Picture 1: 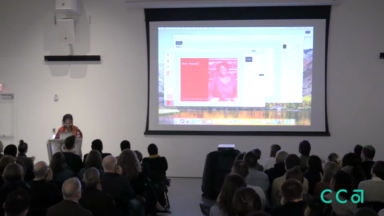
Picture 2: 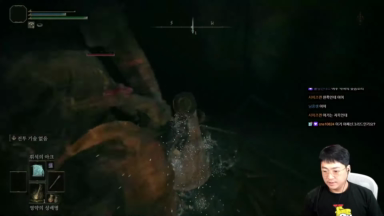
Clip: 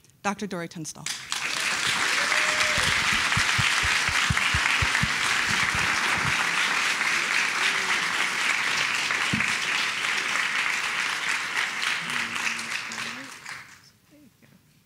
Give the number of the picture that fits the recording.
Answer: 1